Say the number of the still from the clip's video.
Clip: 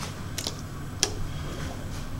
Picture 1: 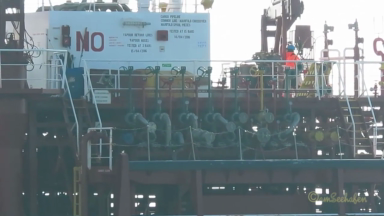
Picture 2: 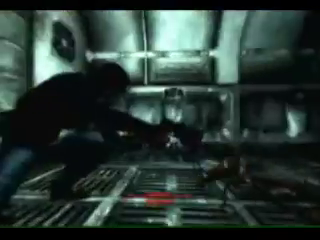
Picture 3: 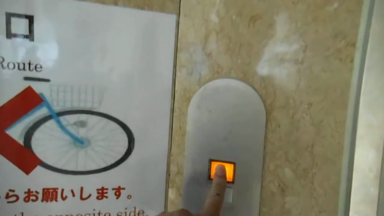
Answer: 3